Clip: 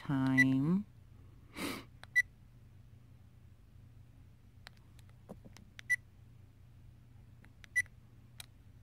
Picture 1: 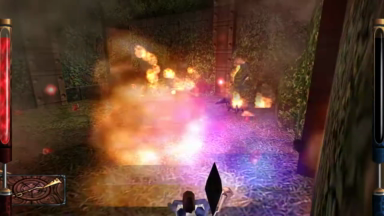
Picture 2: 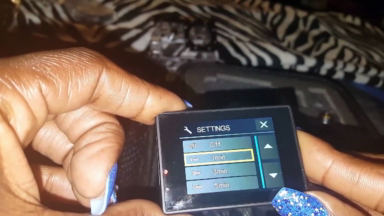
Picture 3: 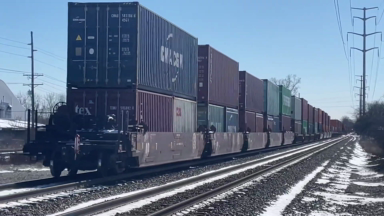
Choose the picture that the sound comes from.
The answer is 2